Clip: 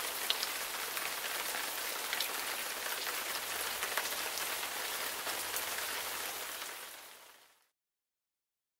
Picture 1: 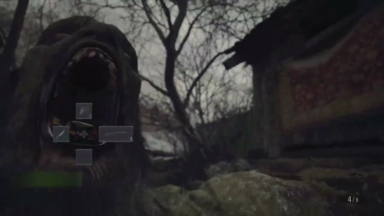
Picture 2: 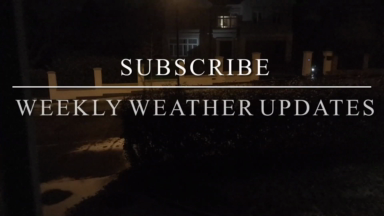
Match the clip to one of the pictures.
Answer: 2